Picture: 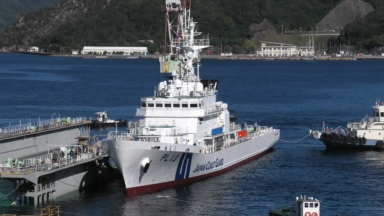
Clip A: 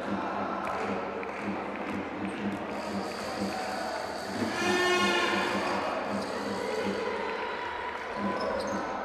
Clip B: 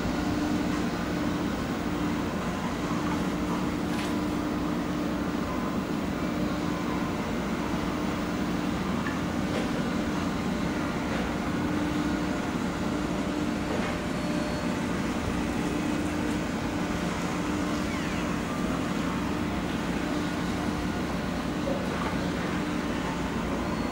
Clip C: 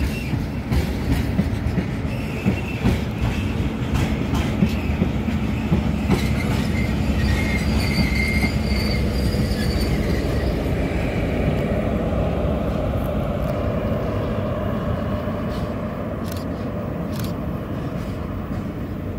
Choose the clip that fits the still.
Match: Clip B